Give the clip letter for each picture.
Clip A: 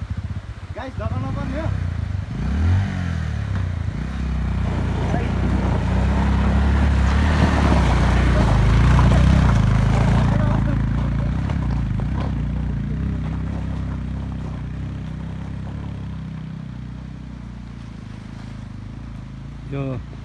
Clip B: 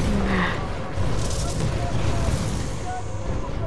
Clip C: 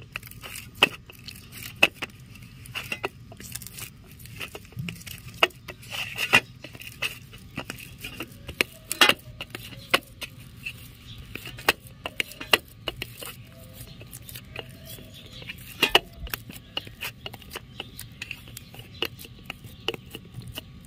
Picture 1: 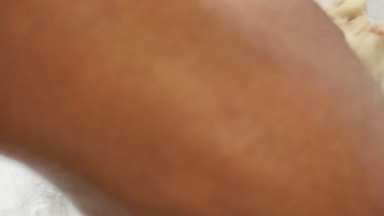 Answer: C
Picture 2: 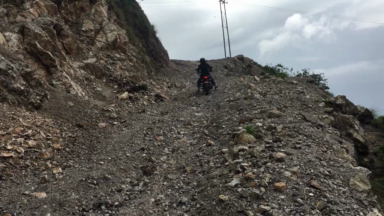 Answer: A